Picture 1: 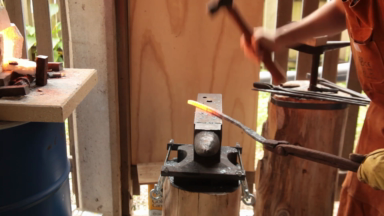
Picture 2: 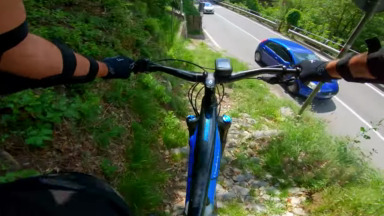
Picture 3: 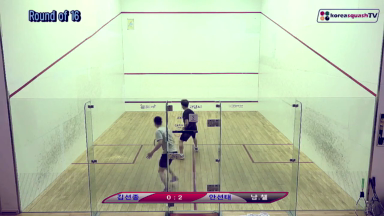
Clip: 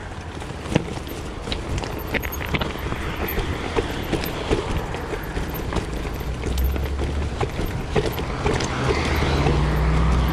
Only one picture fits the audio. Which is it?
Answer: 2